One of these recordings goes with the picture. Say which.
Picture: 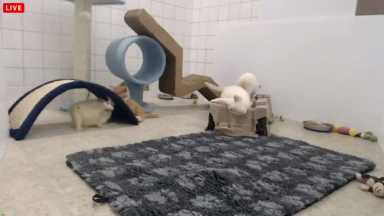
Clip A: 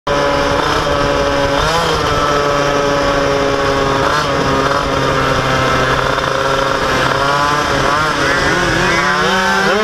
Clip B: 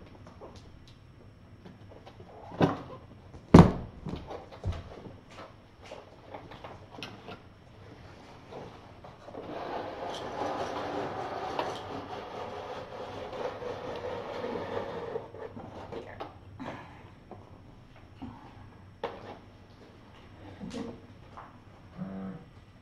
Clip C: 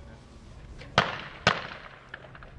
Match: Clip B